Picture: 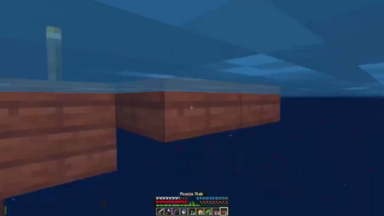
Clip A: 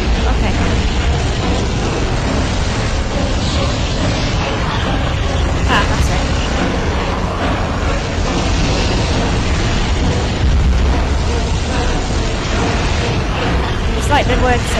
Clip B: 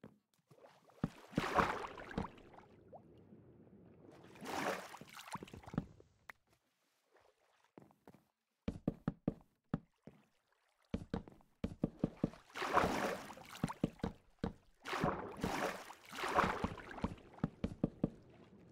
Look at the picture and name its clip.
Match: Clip B